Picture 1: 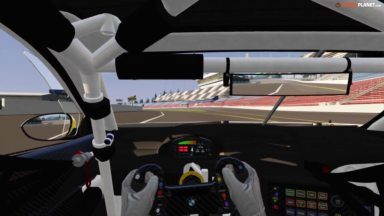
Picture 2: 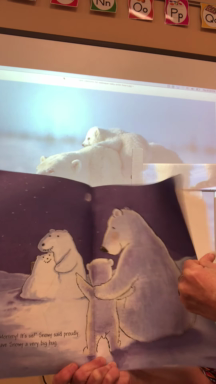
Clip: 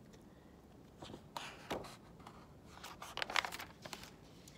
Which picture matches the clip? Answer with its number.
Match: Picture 2